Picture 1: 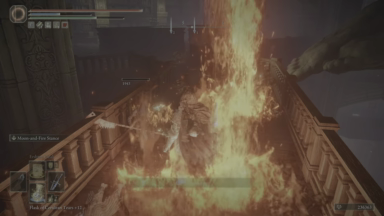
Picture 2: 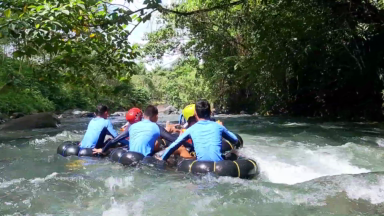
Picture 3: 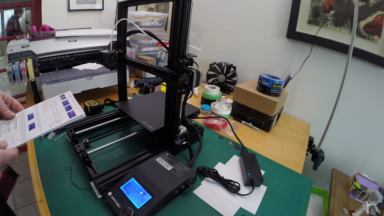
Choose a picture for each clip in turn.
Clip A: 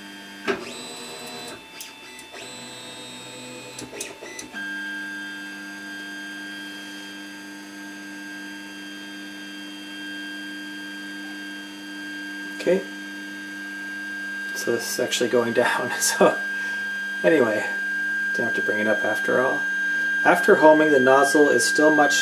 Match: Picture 3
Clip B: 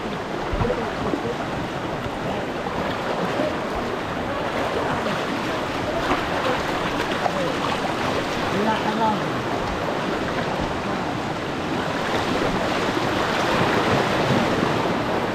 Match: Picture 2